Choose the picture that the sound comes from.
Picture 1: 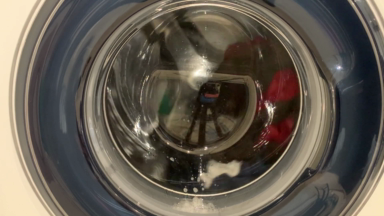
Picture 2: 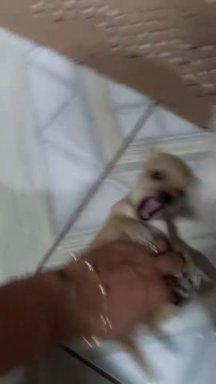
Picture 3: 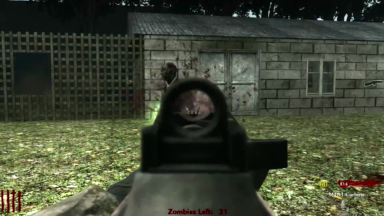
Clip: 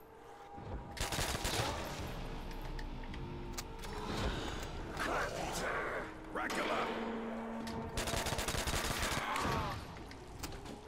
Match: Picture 3